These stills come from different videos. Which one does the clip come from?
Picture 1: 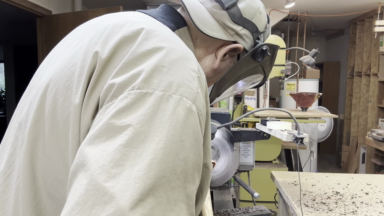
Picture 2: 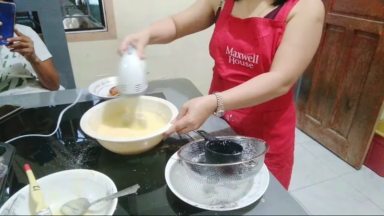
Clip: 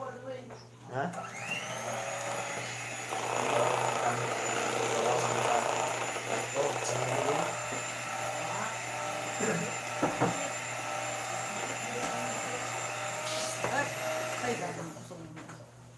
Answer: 2